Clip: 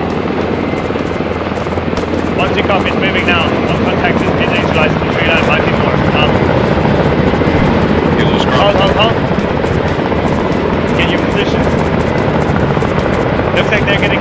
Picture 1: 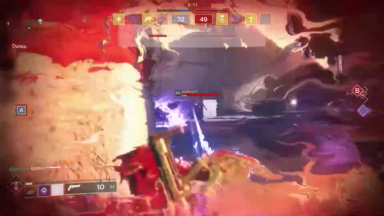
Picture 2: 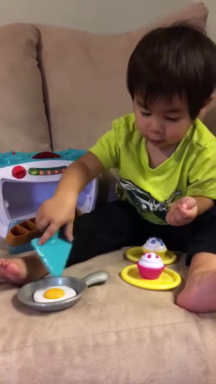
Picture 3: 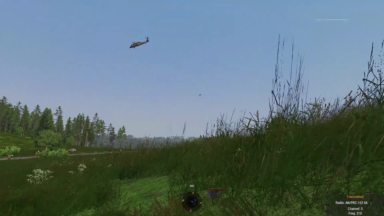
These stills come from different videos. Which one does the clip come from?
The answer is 3